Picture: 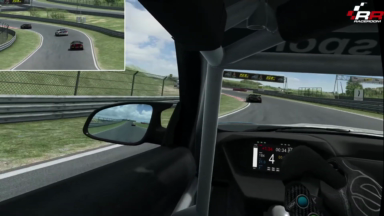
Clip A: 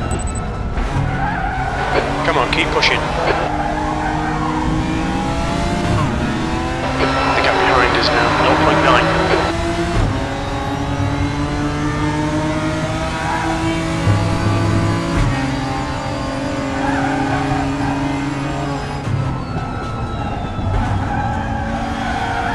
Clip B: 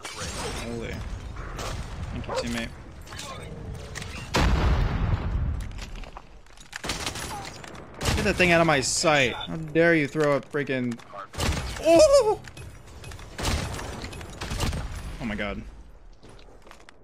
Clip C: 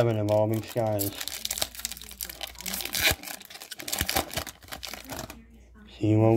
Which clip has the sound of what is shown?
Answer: A